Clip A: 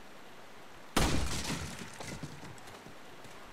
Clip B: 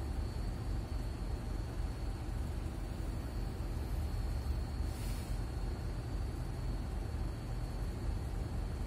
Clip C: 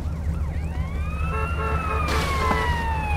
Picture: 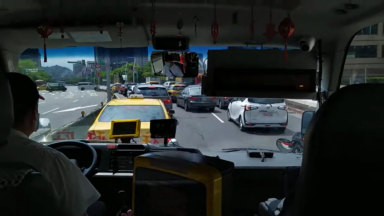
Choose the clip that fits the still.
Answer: B